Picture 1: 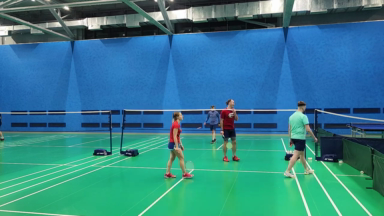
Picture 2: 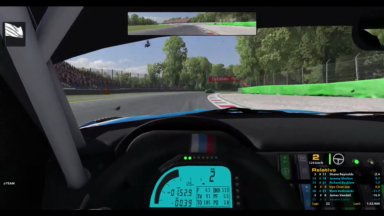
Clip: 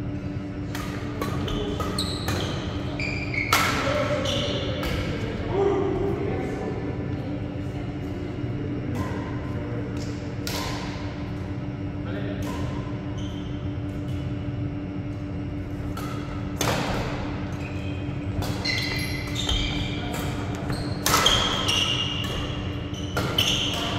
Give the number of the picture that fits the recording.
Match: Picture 1